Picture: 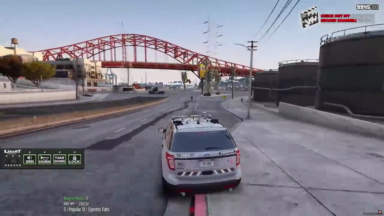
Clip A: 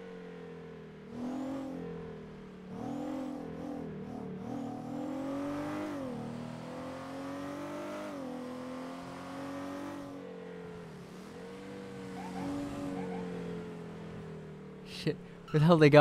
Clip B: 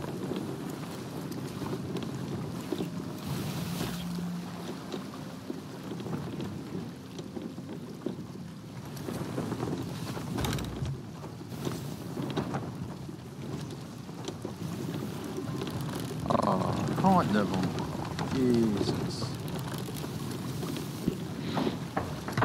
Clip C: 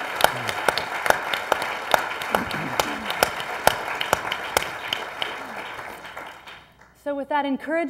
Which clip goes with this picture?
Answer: A